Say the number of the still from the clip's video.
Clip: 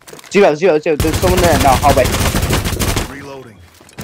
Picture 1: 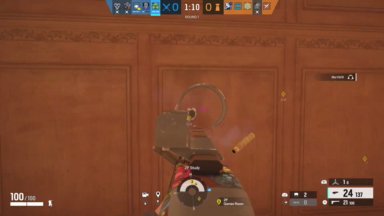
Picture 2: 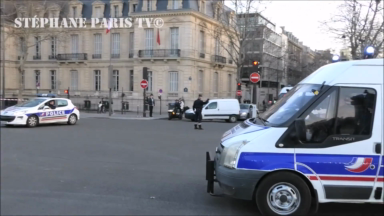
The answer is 1